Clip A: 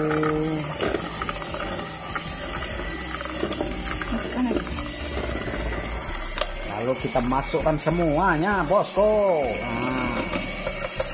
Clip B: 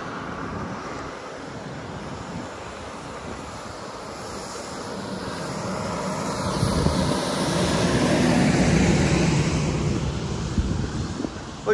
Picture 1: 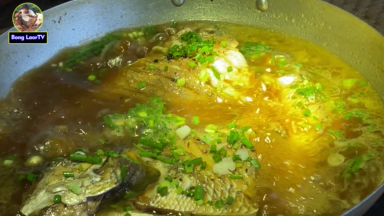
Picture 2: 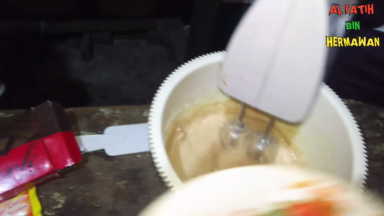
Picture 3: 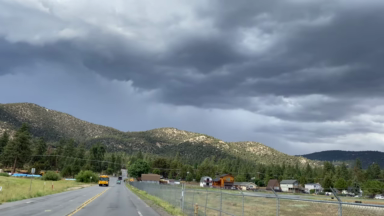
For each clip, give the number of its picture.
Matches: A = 2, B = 3